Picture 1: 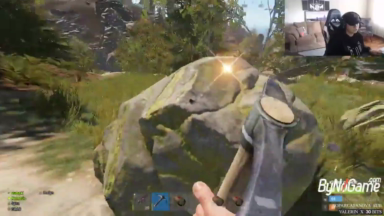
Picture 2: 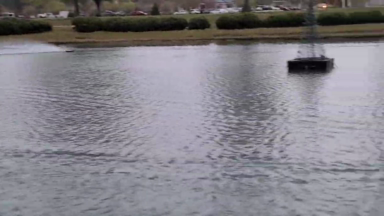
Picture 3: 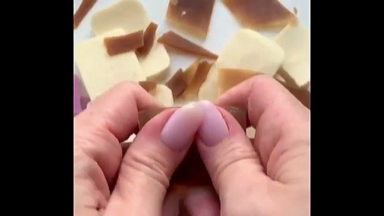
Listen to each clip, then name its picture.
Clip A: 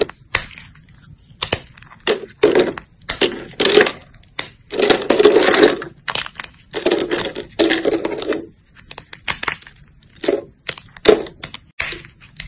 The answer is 3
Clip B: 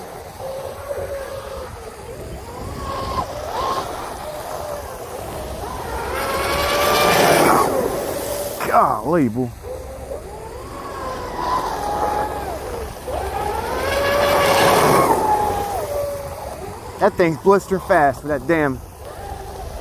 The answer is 2